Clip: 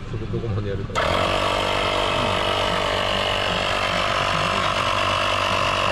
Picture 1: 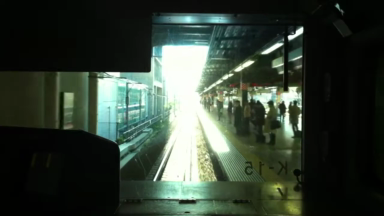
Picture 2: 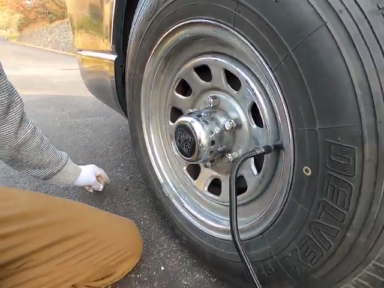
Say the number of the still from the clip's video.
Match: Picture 2